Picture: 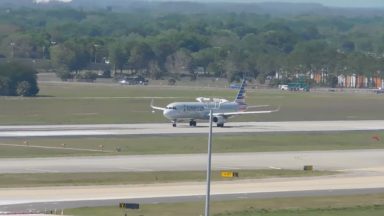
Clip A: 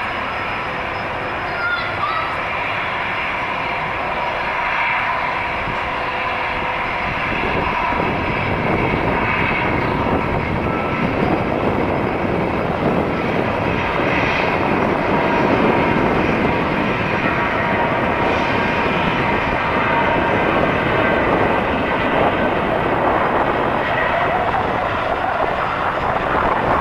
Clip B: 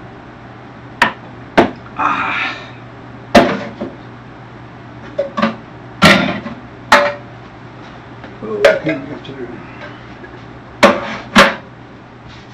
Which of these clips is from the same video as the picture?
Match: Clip A